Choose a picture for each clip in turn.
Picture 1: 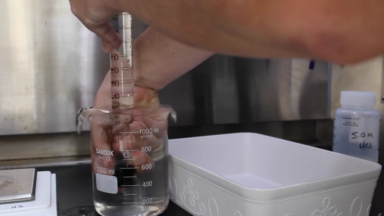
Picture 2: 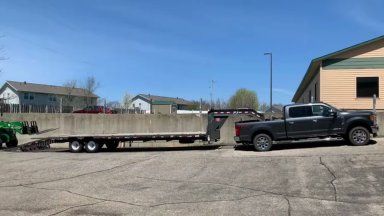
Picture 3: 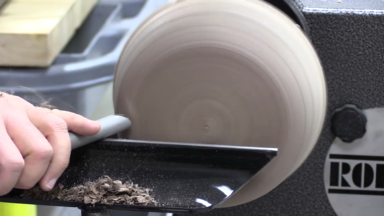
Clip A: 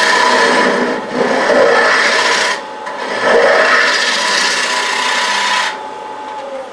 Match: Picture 3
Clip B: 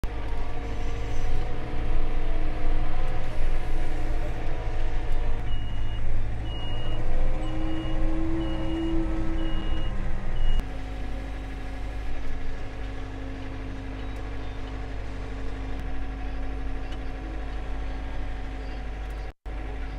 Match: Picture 2